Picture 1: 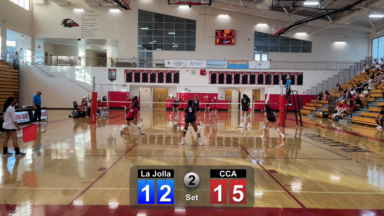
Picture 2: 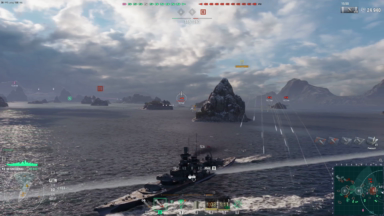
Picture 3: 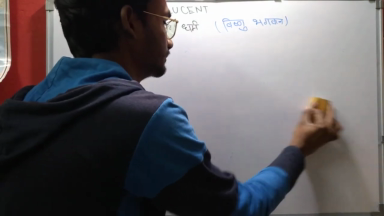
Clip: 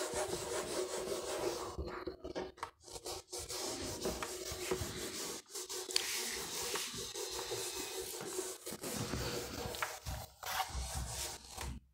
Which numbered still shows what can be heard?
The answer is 3